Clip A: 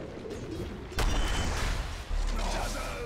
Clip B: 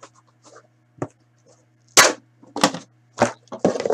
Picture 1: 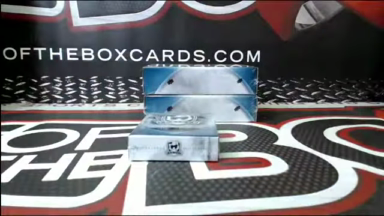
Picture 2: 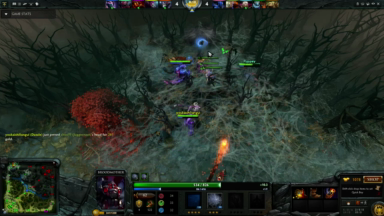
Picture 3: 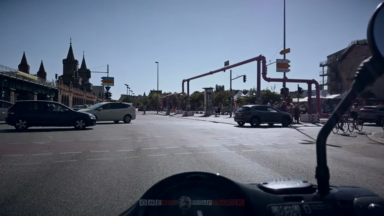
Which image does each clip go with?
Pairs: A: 2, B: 1